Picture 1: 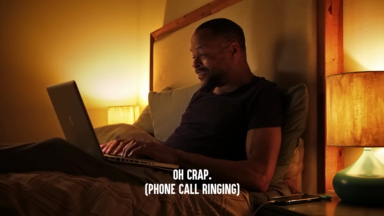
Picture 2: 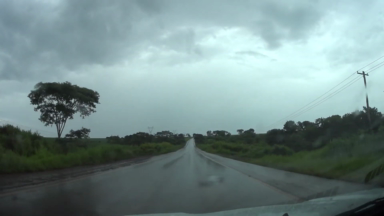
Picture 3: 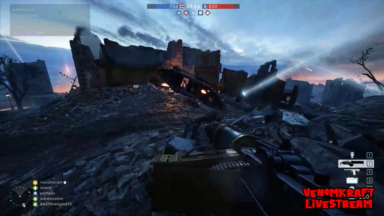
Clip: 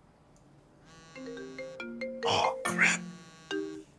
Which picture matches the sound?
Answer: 1